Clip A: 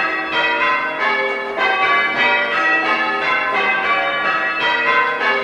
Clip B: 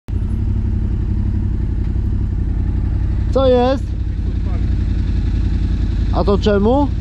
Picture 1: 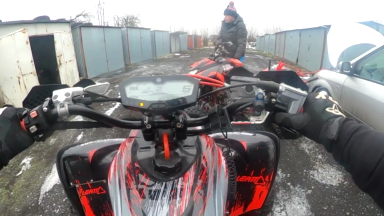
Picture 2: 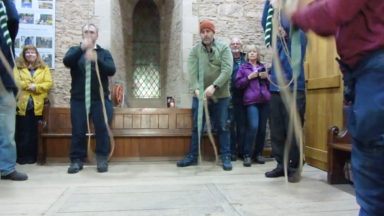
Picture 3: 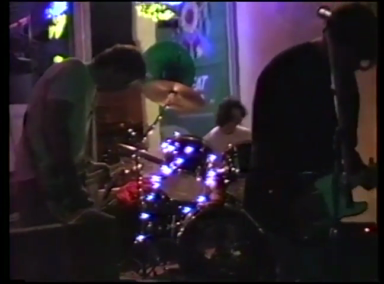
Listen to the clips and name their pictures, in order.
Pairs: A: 2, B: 1